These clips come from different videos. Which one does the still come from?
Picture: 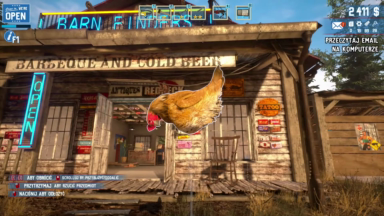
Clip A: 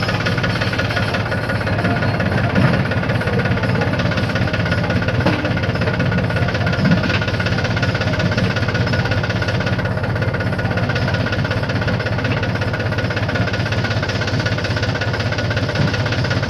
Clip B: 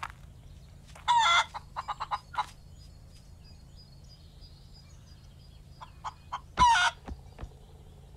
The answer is B